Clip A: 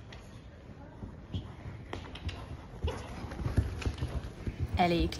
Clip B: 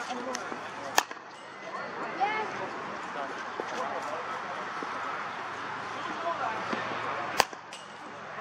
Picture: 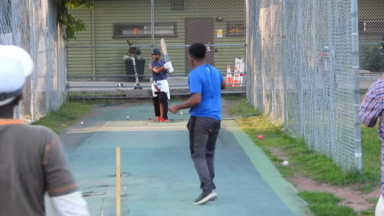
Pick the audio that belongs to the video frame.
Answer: B